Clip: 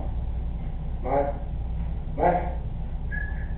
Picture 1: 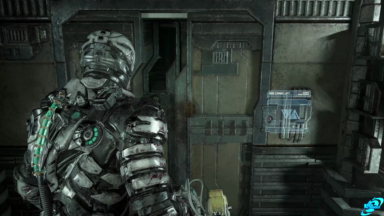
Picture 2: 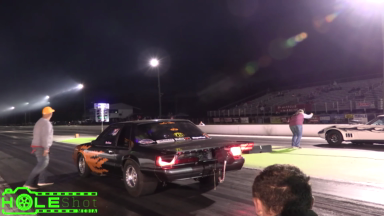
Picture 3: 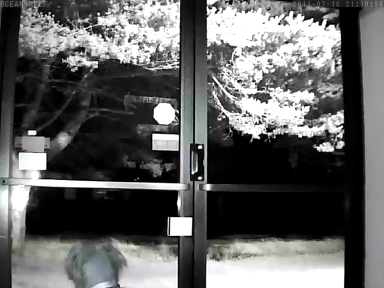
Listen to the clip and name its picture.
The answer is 3